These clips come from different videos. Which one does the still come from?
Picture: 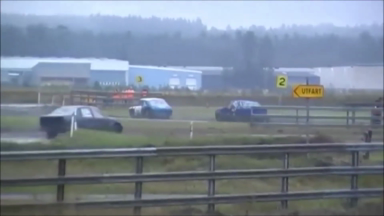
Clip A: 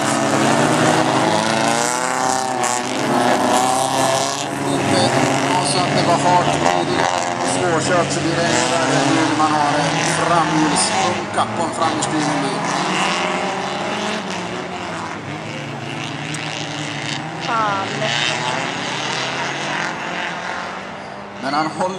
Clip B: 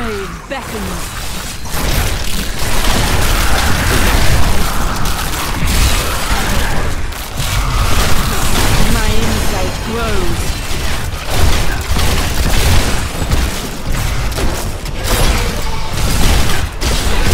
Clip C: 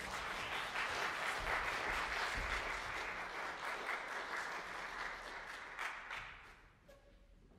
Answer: A